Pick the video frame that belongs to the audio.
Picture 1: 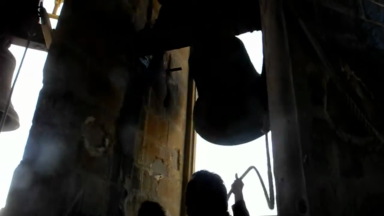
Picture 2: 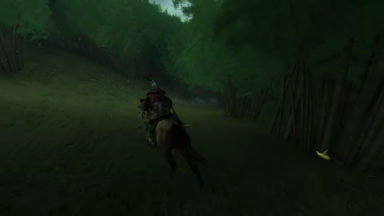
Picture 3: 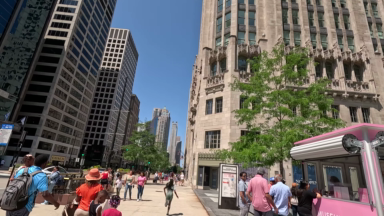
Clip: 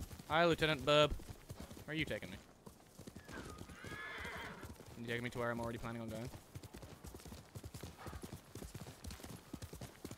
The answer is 2